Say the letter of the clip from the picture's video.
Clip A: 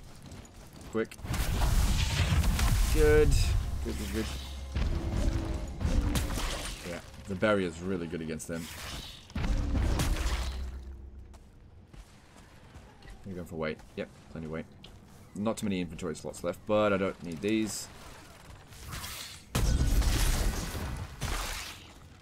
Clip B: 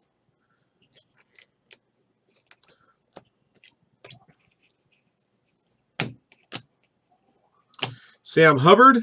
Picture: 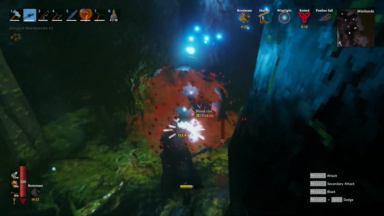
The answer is A